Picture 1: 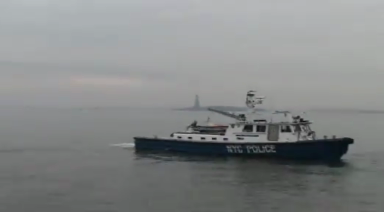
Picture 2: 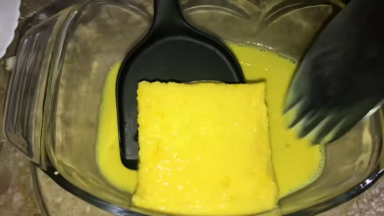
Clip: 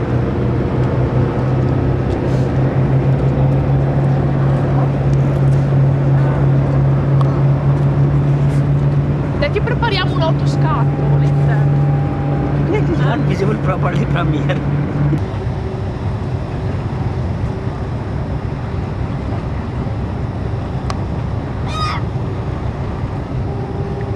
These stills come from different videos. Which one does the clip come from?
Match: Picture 1